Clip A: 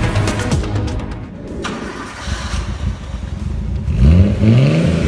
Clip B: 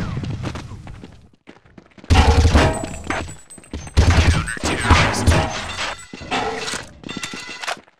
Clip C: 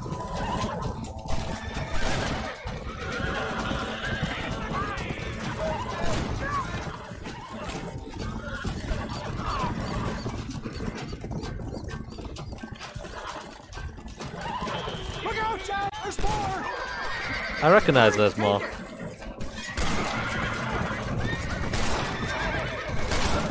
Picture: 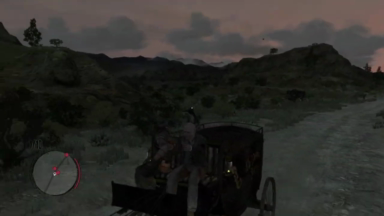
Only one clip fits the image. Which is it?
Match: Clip C